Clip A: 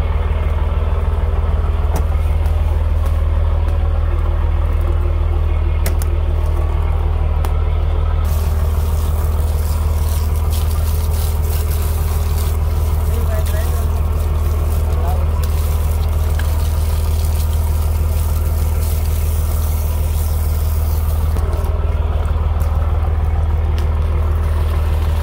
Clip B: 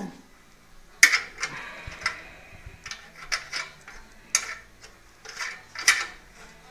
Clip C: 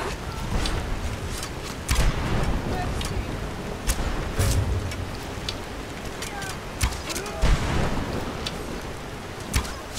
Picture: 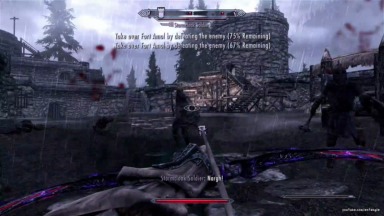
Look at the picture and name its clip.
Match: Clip C